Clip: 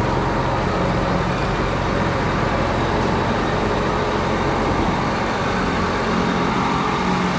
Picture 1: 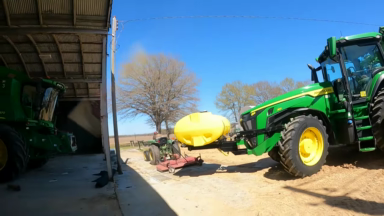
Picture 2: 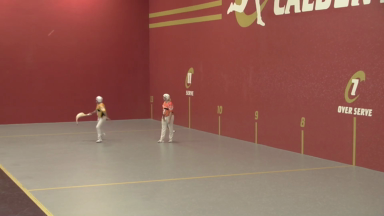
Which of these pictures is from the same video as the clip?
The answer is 1